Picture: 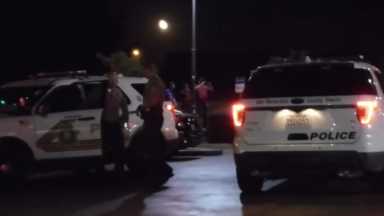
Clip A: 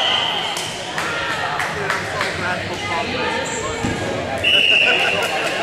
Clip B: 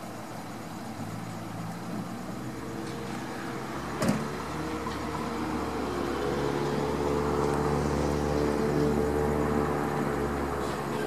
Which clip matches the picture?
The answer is B